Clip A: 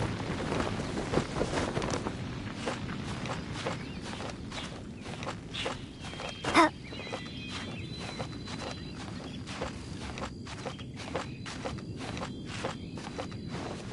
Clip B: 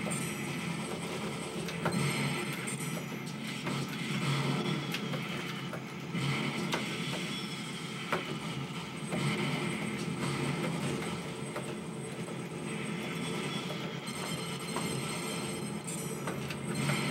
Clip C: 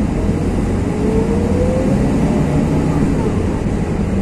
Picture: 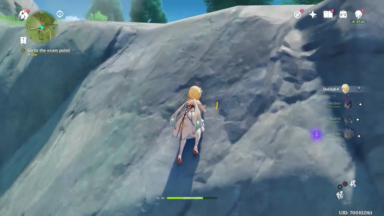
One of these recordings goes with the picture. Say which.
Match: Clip A